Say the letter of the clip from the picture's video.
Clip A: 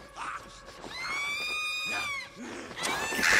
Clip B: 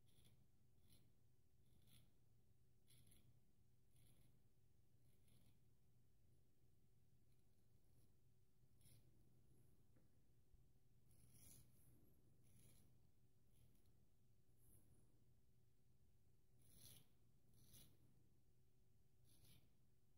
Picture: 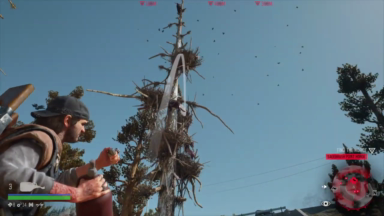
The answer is A